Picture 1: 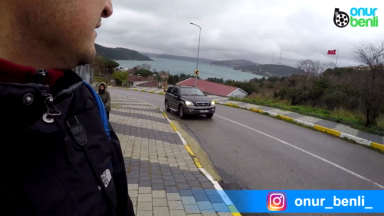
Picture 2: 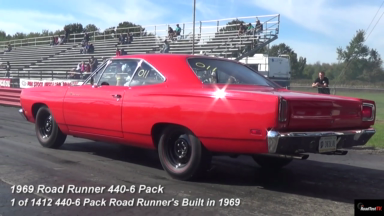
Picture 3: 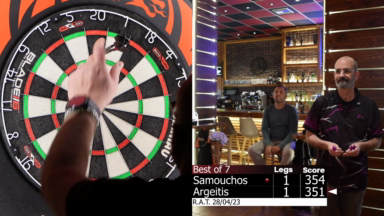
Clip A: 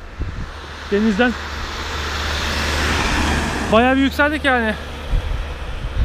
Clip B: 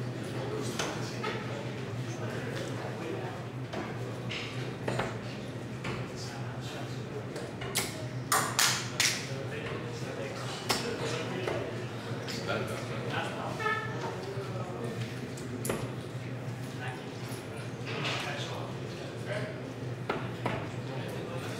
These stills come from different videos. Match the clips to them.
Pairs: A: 1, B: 3